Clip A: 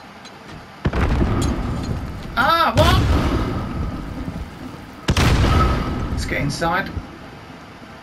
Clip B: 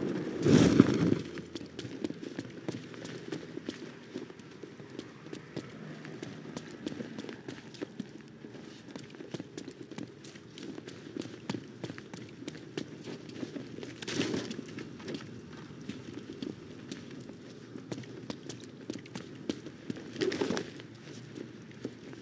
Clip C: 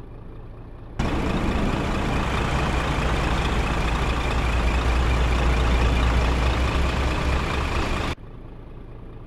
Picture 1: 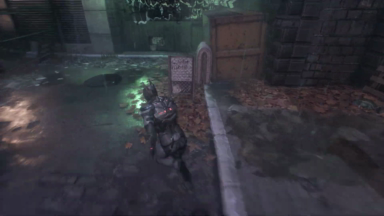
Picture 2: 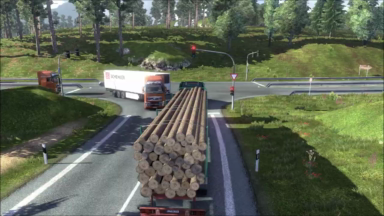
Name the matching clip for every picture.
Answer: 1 B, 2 C